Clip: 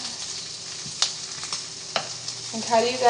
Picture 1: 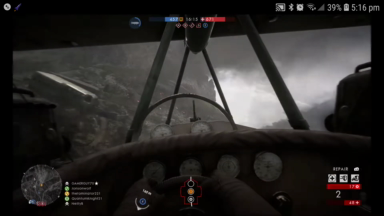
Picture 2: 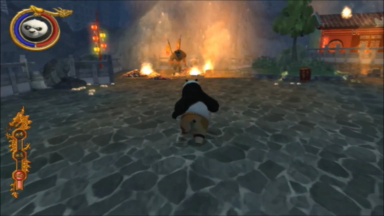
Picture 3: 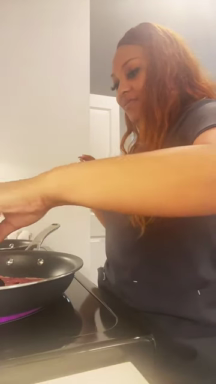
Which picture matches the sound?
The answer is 3